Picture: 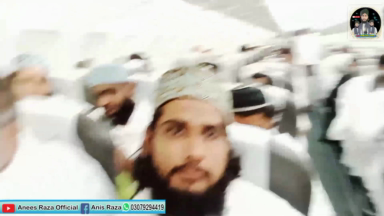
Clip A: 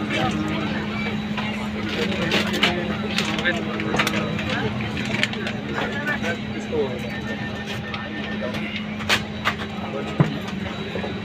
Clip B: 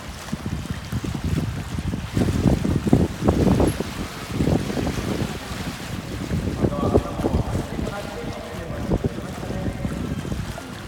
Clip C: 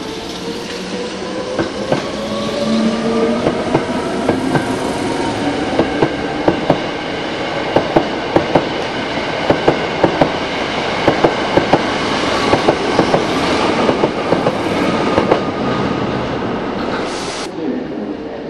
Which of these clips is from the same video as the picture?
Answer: A